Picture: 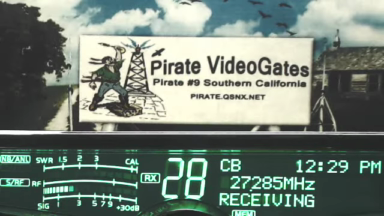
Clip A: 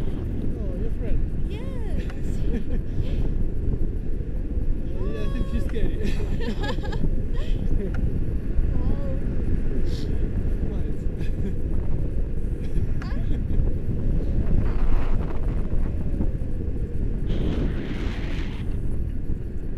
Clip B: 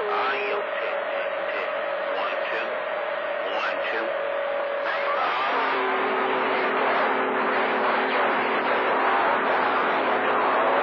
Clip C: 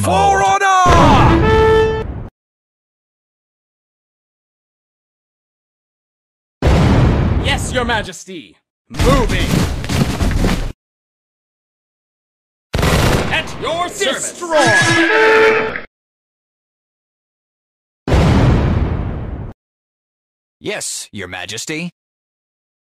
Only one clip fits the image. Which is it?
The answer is B